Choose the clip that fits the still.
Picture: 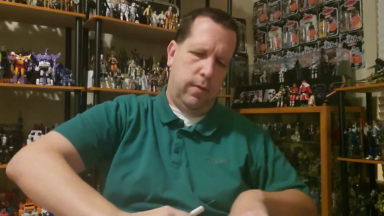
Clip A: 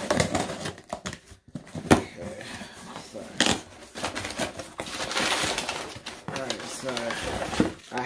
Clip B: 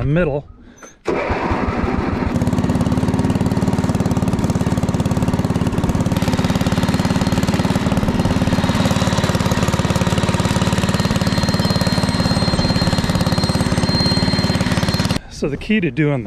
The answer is A